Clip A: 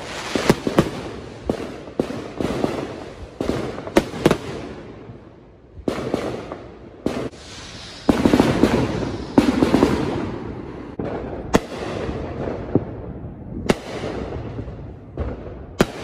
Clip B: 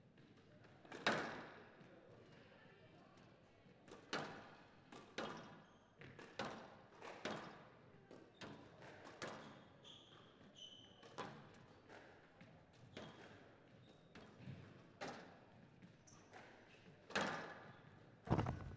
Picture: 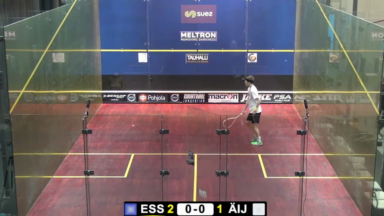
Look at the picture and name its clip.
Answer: B